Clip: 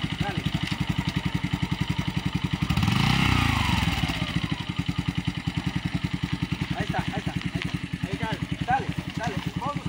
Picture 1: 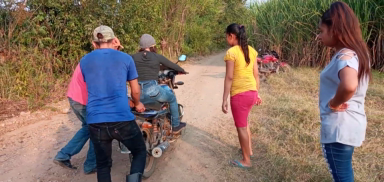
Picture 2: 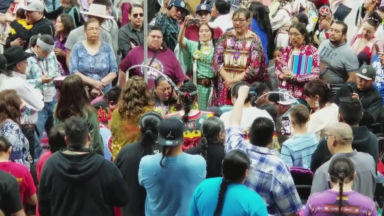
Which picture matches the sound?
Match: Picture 1